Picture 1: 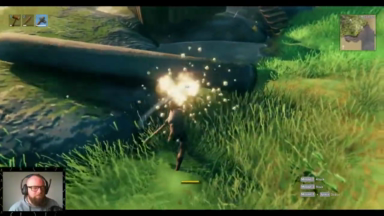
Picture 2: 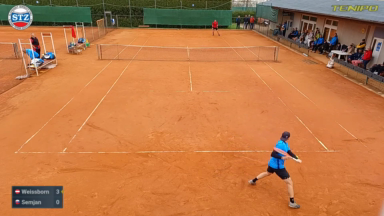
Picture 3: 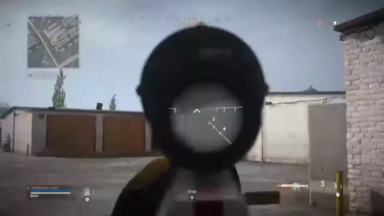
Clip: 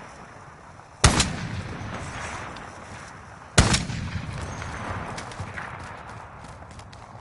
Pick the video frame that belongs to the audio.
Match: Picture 3